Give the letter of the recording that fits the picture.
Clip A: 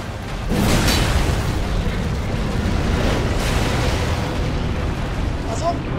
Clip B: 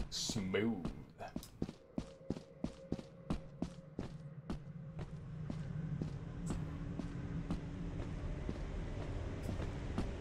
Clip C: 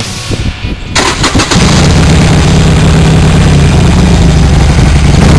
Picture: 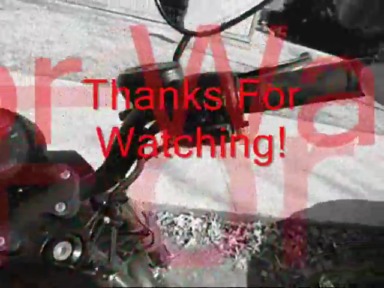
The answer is C